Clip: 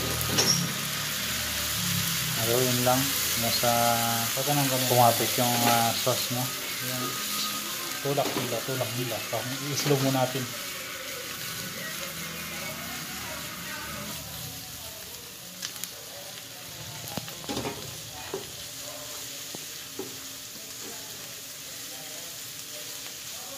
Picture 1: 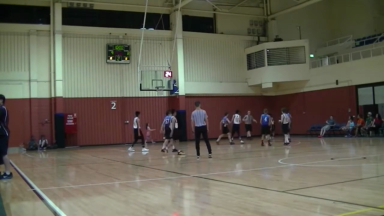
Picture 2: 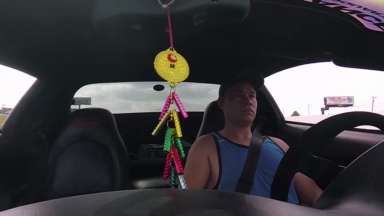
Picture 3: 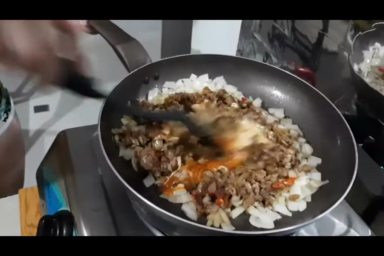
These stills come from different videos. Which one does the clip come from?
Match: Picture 3